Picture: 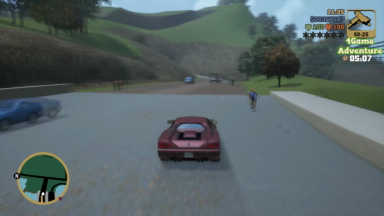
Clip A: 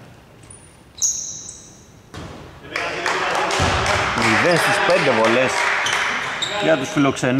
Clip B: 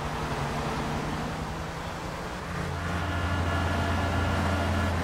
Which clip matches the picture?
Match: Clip B